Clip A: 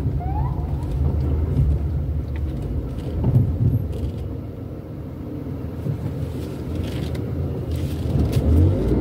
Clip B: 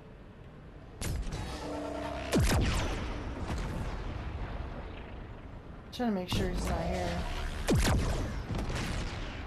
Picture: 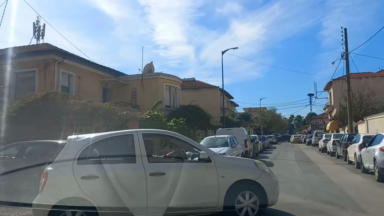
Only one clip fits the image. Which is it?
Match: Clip A